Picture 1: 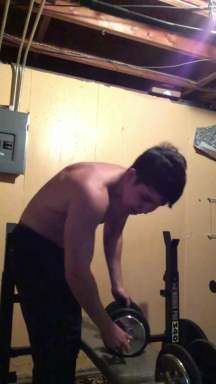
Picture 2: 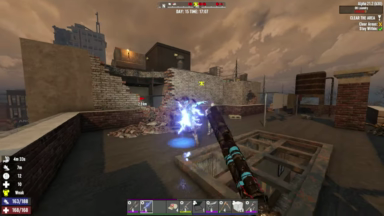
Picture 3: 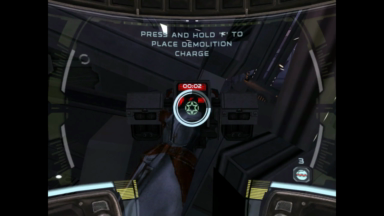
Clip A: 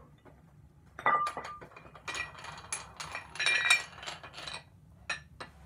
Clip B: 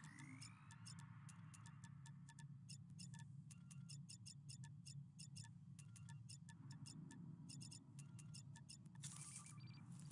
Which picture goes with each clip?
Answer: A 1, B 3